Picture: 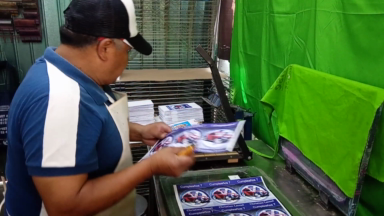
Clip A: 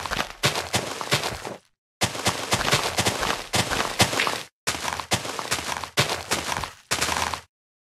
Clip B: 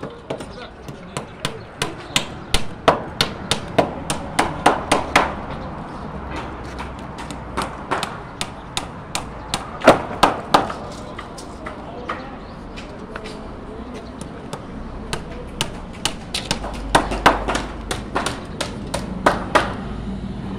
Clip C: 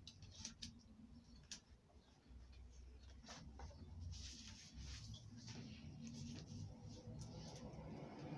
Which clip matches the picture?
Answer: C